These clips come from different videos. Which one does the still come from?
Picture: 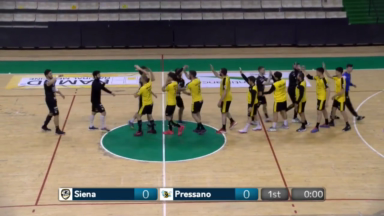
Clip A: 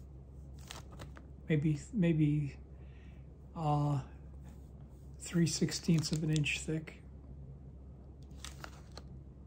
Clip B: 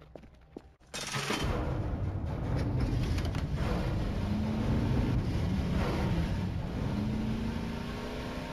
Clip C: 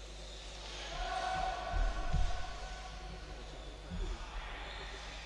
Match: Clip C